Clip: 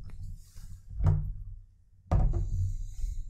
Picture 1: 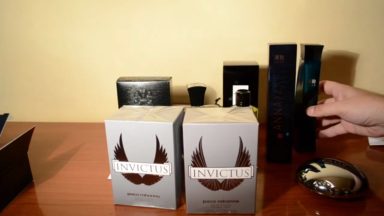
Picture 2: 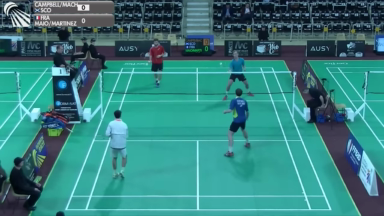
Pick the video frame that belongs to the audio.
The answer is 1